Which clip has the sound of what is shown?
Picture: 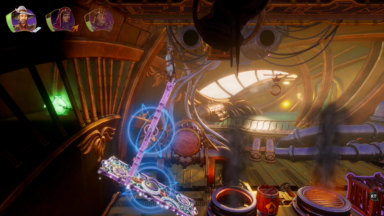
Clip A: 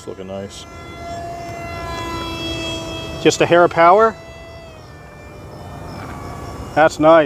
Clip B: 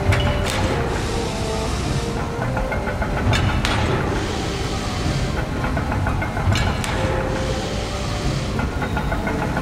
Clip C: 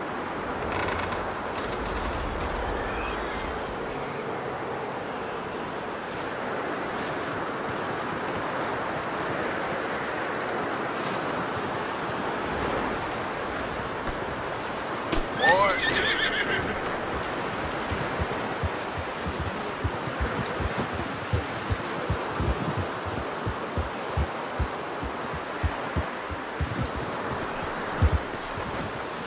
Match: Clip B